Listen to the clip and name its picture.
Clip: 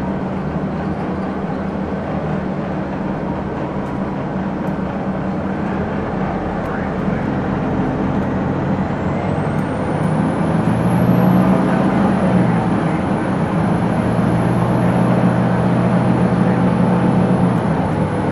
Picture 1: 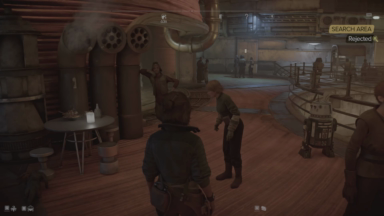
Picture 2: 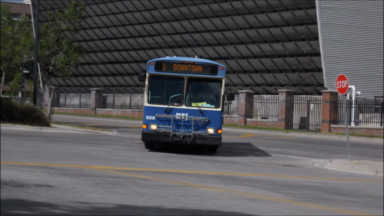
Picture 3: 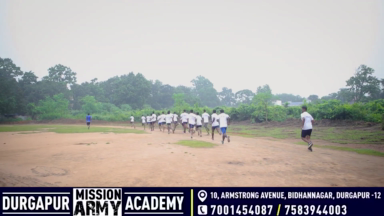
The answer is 2